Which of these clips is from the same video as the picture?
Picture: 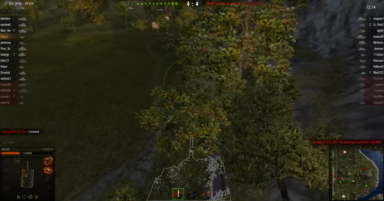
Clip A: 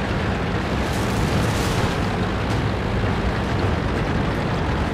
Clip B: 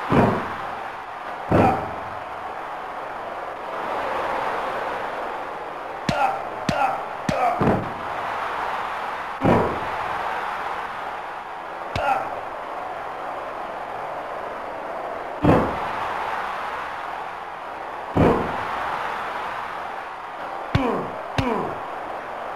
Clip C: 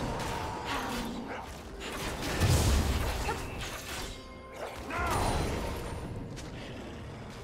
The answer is A